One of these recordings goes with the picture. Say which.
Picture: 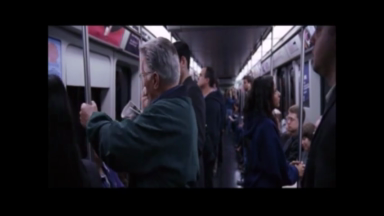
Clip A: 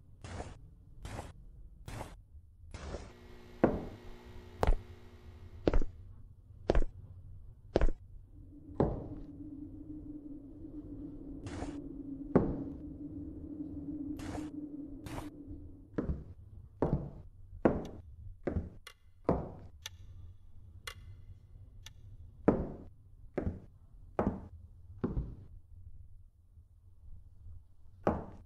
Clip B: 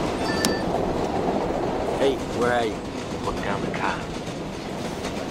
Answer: B